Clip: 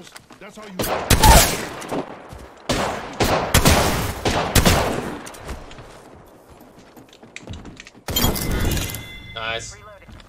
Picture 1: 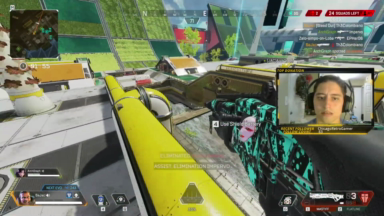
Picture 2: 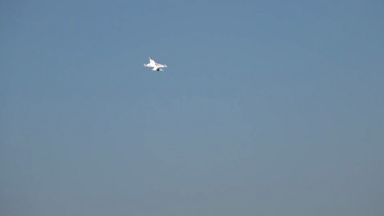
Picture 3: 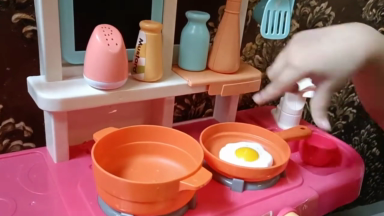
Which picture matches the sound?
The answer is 1